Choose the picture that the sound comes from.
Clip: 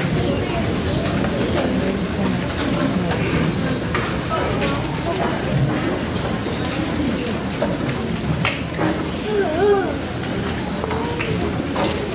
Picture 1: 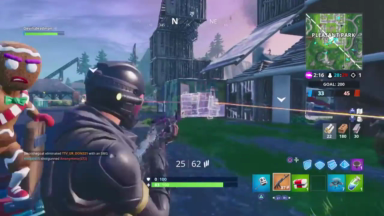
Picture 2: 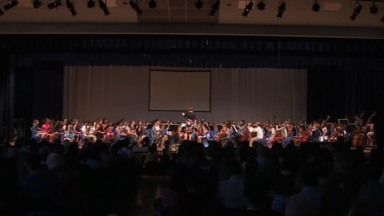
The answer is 2